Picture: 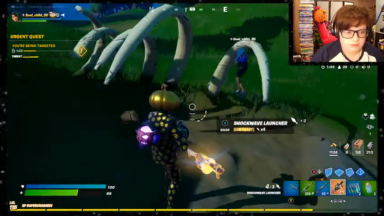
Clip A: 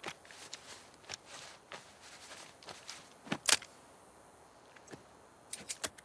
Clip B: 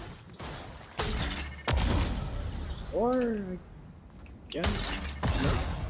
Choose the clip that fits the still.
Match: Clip B